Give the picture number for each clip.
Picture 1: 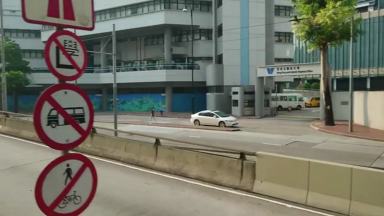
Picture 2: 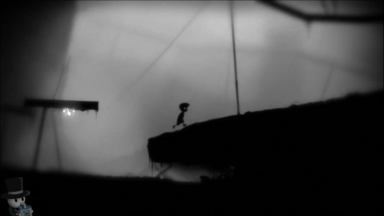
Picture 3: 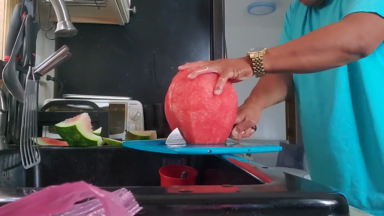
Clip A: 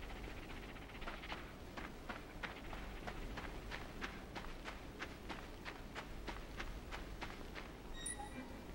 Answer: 2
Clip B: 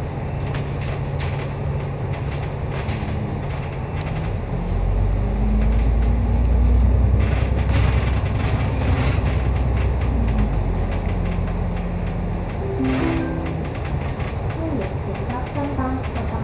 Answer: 1